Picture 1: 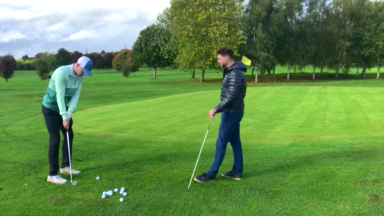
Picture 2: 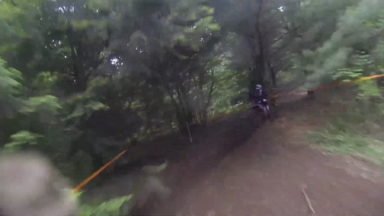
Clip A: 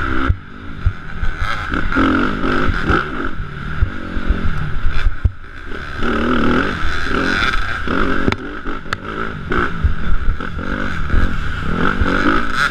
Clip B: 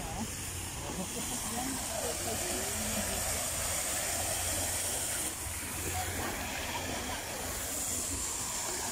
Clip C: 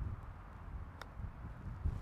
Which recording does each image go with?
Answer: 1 C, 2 A